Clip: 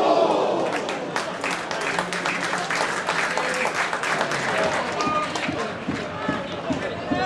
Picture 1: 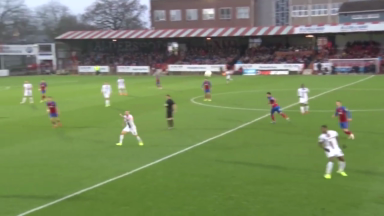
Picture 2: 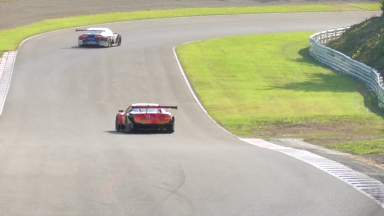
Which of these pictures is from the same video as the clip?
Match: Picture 1